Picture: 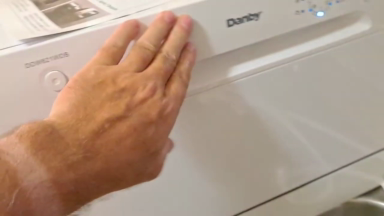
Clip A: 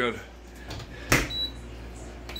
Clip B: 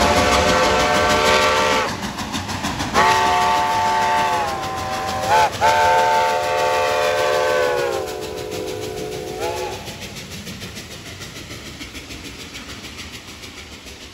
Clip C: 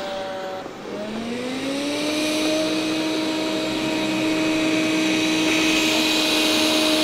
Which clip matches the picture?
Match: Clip A